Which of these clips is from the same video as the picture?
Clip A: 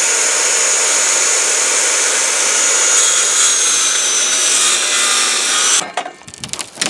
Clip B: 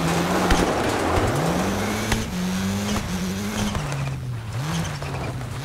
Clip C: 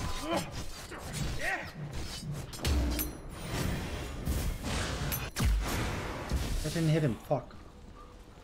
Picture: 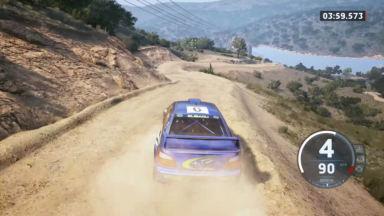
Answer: B